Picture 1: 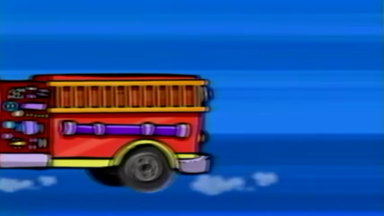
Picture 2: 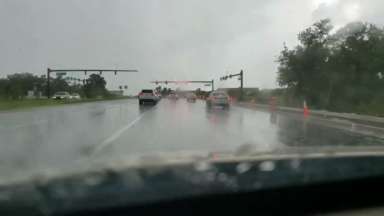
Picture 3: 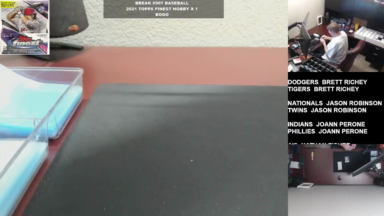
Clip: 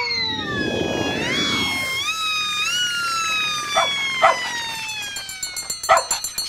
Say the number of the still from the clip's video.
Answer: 1